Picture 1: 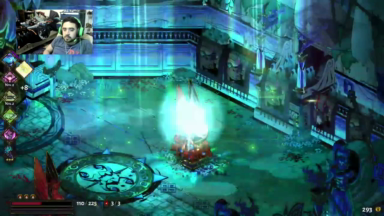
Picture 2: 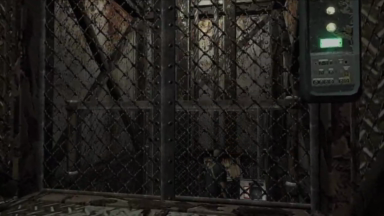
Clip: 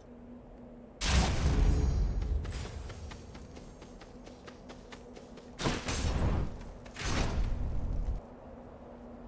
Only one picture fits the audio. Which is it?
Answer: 1